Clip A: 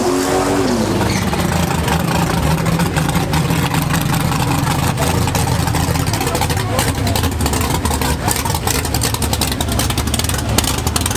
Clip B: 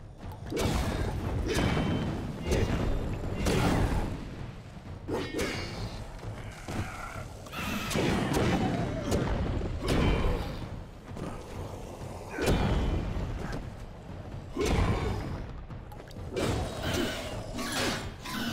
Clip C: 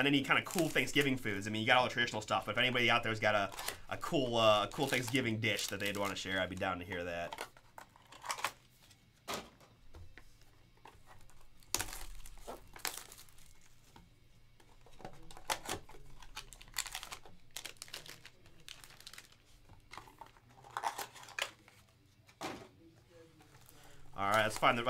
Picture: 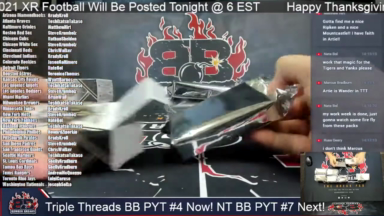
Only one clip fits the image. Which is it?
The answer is C